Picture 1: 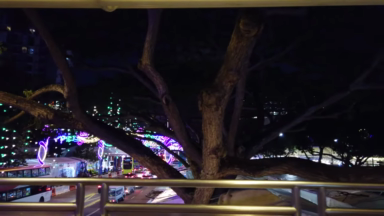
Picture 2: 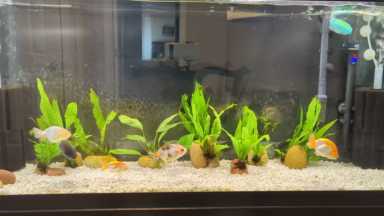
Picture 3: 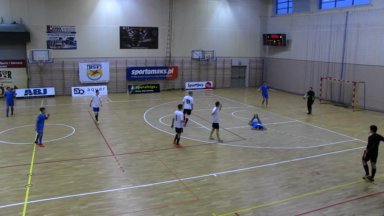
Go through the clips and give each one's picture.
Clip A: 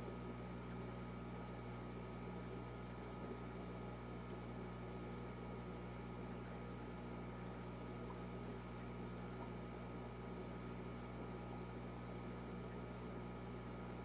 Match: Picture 2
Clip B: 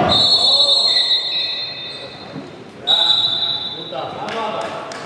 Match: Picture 3